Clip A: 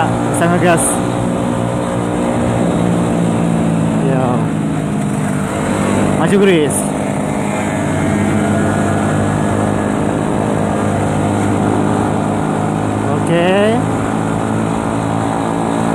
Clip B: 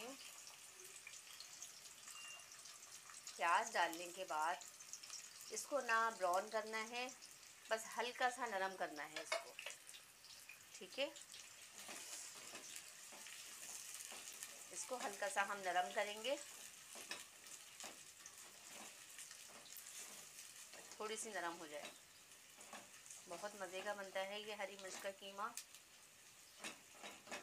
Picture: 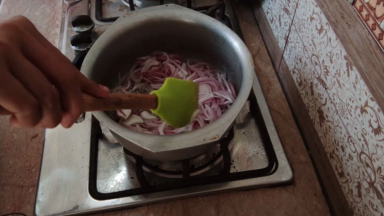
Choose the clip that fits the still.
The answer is B